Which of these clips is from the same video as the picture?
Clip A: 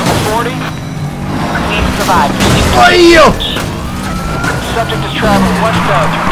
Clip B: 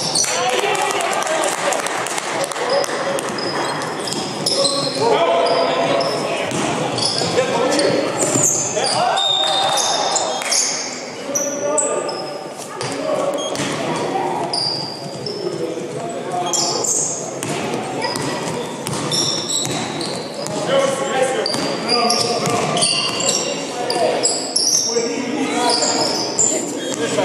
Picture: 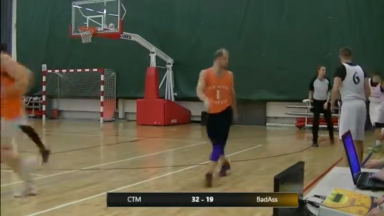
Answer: B